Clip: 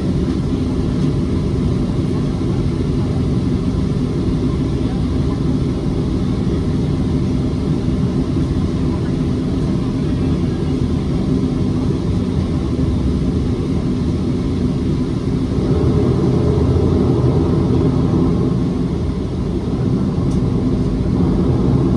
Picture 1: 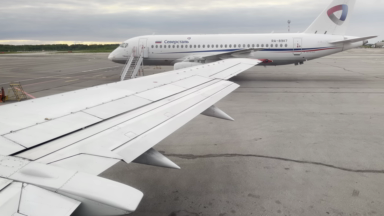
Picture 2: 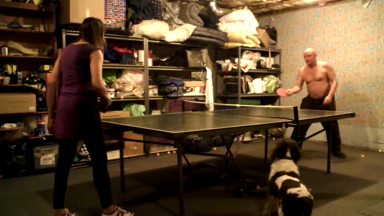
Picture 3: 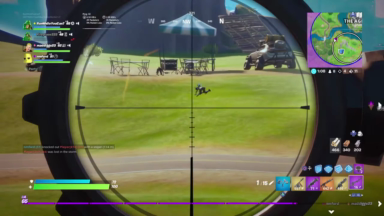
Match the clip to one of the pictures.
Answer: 1